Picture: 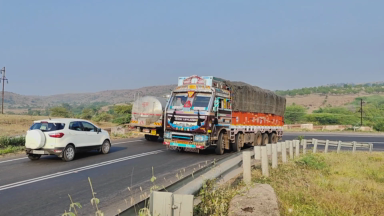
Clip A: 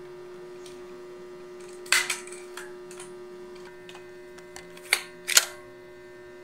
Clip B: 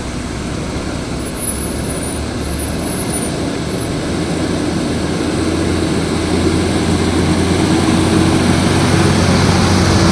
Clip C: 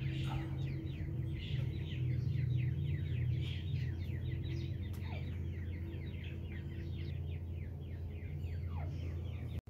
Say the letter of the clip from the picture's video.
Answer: B